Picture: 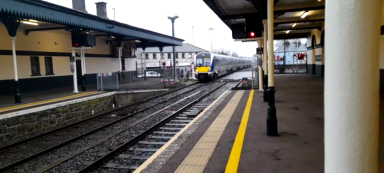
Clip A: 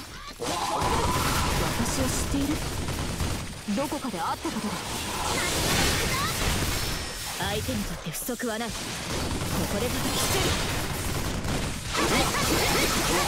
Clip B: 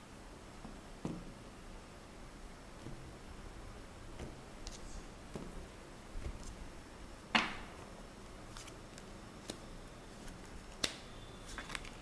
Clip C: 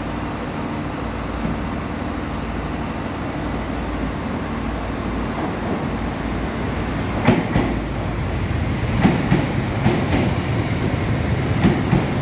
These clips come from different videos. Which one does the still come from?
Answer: C